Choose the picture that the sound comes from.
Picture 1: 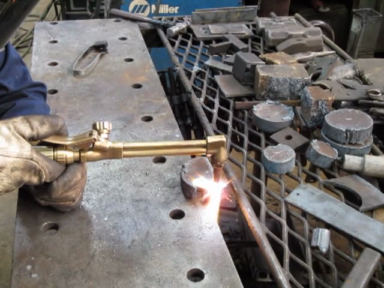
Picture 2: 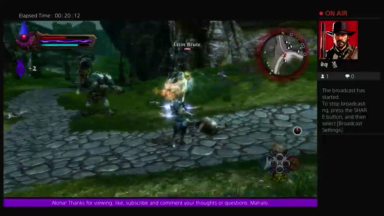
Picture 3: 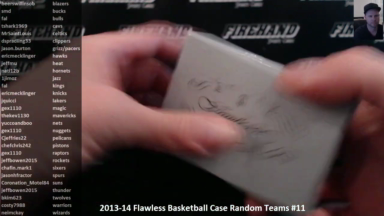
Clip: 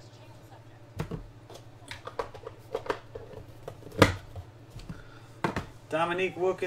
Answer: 3